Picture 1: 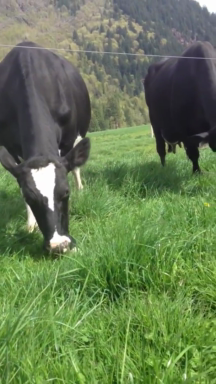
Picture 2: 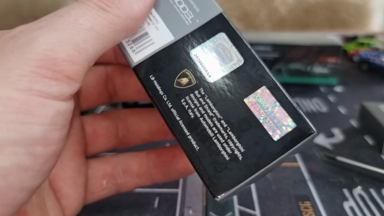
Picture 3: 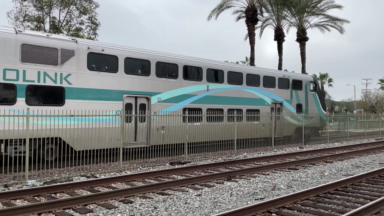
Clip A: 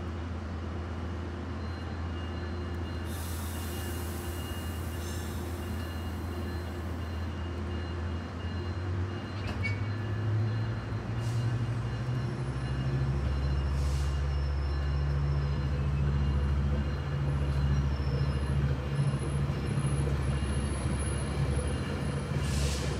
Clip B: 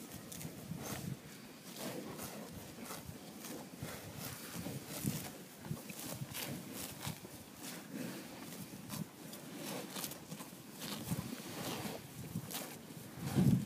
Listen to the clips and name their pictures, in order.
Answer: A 3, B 1